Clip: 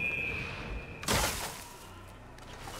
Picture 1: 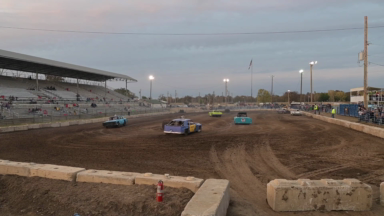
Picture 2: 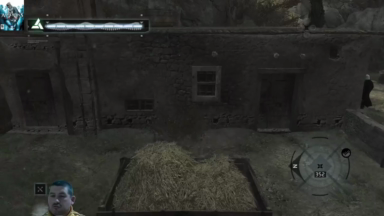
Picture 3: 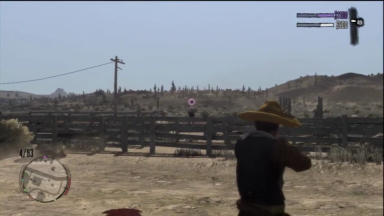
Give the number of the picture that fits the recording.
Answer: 2